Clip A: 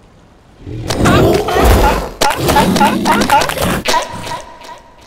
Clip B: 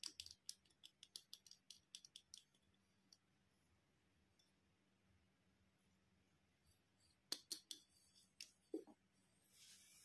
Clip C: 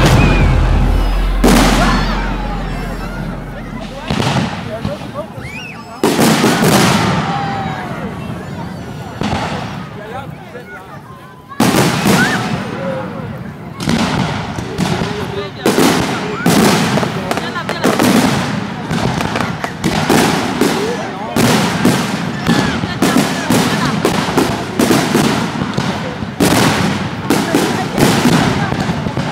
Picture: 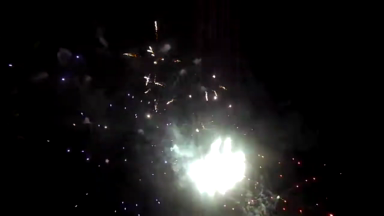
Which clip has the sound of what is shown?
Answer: C